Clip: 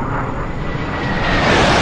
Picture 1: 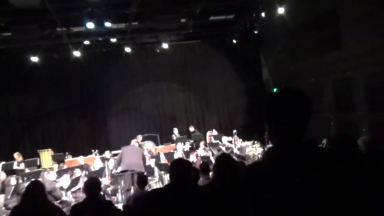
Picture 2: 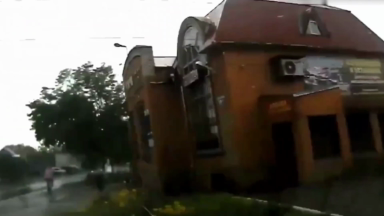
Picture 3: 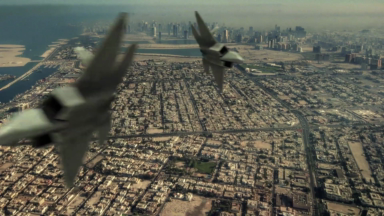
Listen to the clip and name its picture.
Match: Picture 3